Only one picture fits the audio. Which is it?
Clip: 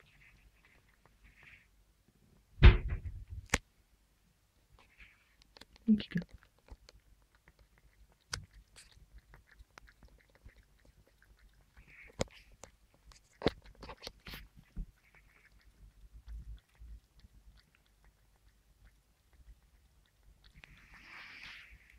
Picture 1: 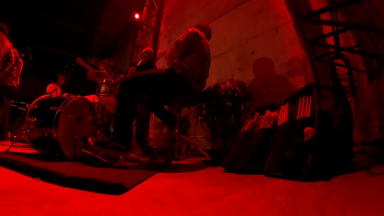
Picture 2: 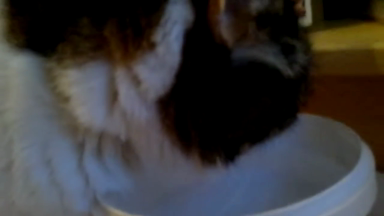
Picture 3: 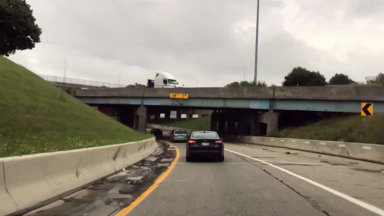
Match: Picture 2